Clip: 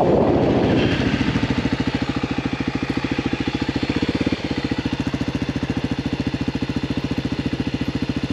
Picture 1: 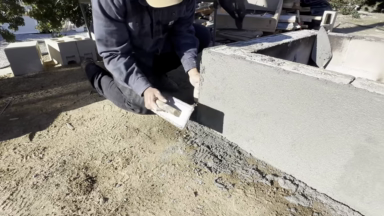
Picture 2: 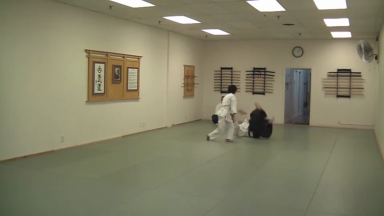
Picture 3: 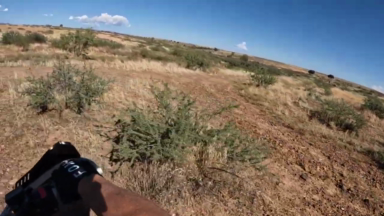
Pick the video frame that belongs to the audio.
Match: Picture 3